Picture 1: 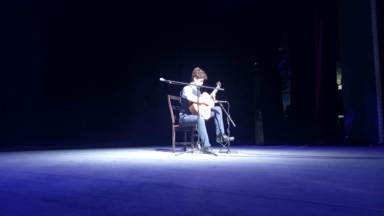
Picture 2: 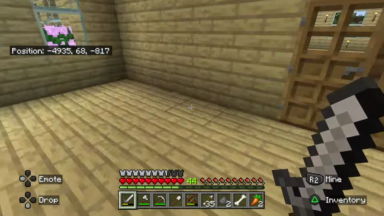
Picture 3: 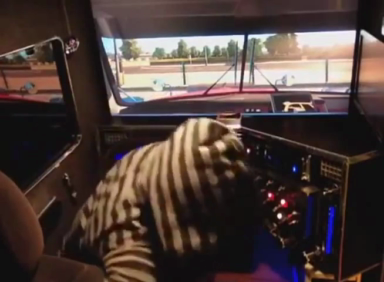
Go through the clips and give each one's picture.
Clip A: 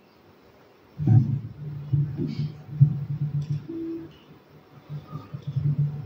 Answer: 1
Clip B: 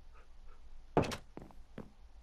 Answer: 2